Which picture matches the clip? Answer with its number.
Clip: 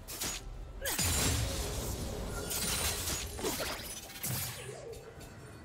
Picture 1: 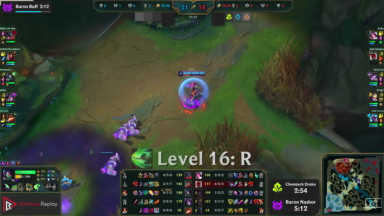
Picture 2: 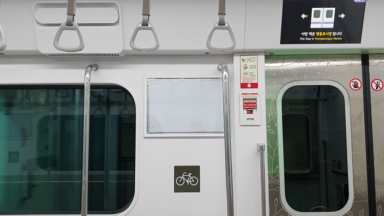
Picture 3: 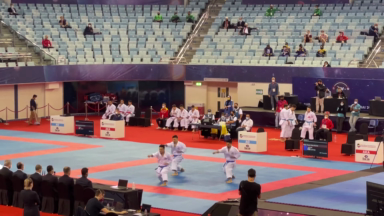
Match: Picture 1